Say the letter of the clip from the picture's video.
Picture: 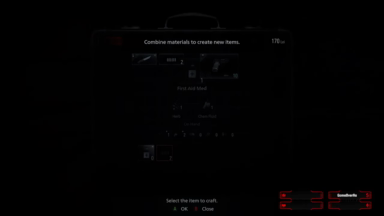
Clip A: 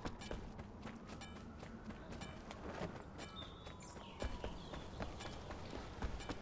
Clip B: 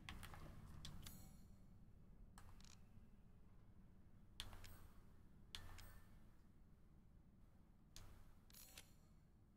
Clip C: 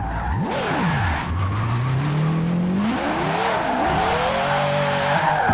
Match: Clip B